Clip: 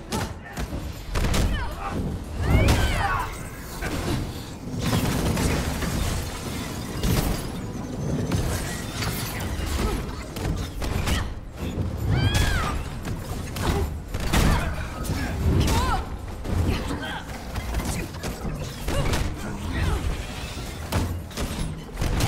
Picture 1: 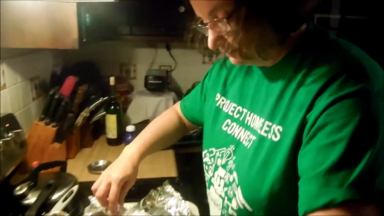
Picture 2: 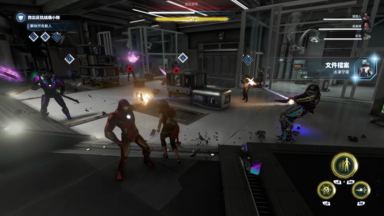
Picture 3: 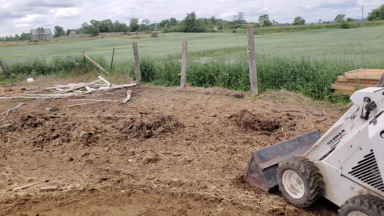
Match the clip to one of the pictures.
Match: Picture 2